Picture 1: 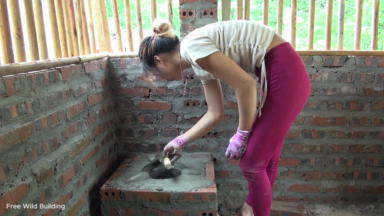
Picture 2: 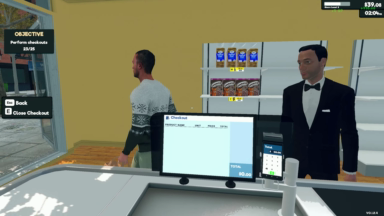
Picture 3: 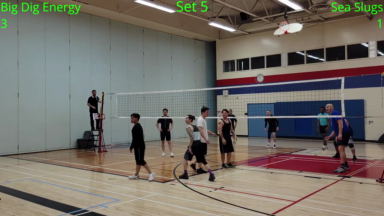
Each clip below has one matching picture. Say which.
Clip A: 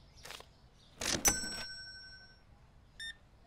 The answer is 2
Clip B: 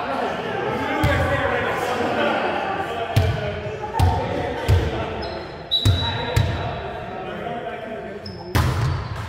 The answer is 3